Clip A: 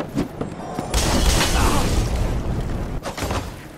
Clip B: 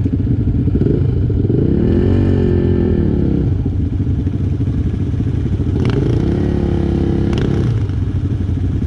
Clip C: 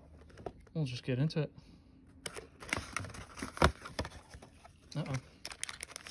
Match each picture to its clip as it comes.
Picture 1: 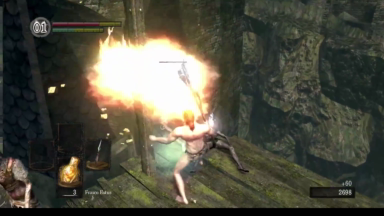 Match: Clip A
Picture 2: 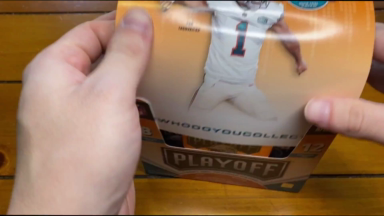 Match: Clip C